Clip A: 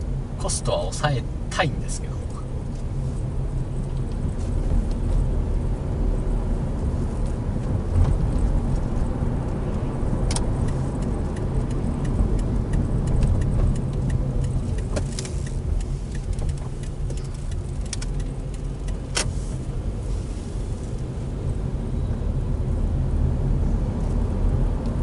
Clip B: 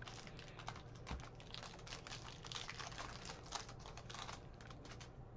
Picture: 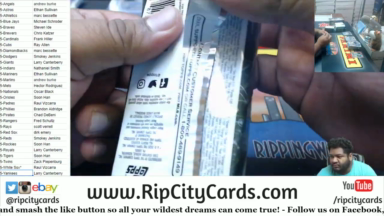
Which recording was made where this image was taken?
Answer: B